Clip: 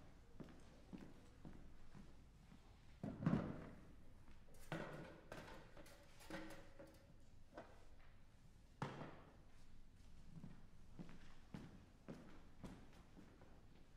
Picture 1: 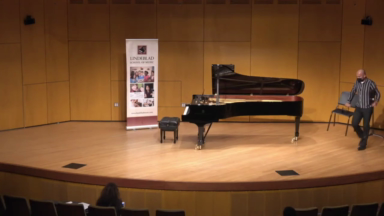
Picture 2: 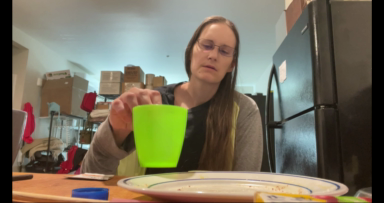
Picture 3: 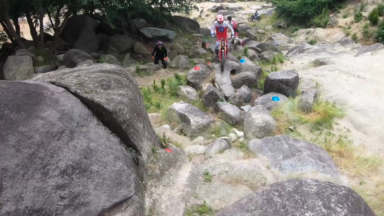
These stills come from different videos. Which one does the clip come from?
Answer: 1